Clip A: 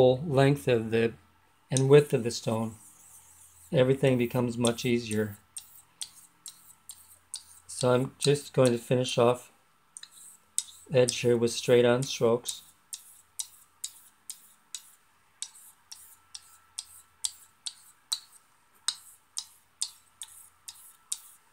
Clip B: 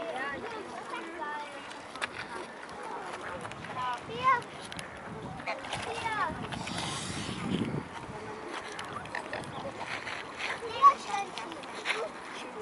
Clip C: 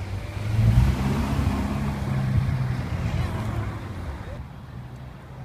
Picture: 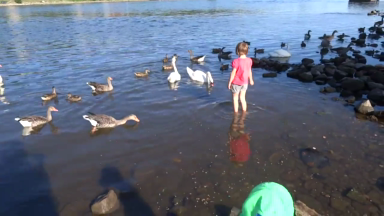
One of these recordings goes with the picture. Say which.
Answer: B